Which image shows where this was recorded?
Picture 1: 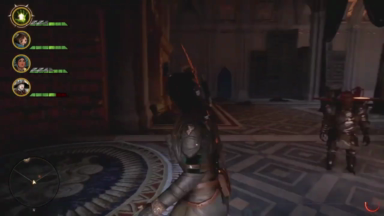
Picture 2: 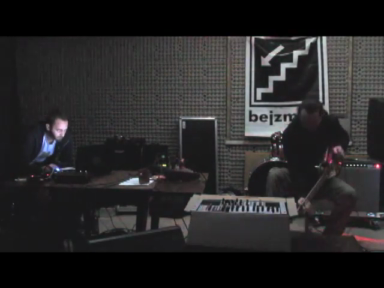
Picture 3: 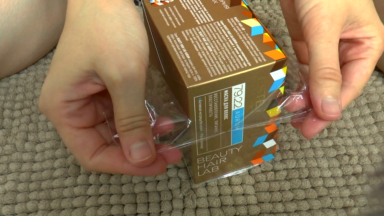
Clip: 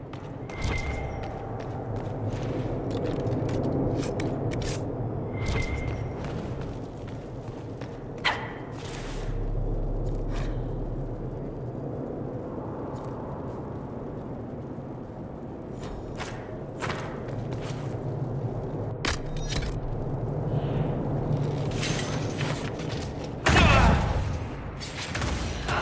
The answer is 1